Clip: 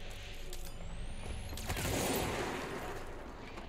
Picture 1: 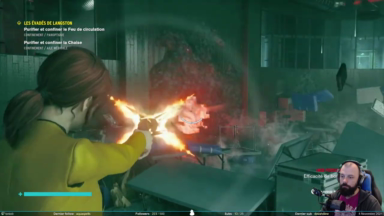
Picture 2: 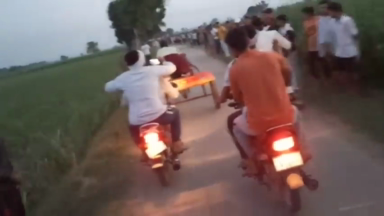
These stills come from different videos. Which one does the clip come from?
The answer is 1